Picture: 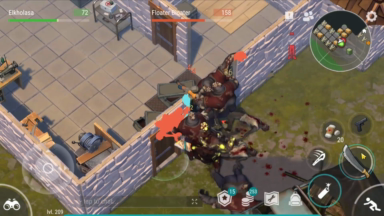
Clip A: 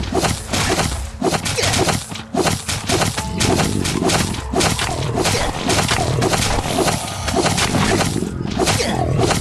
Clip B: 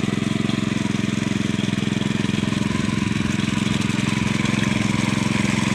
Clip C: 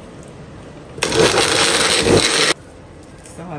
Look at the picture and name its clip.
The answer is A